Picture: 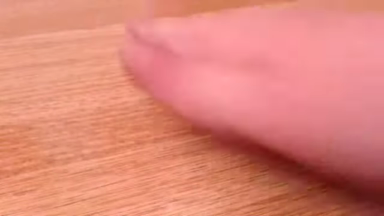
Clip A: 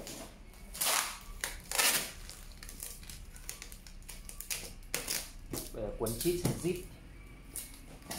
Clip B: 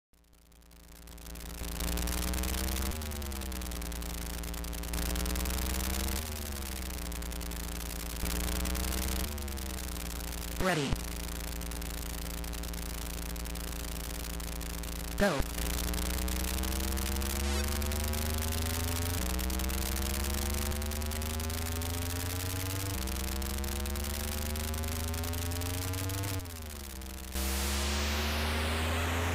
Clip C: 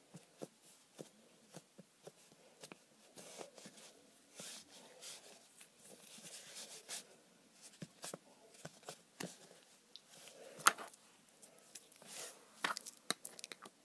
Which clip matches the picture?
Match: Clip C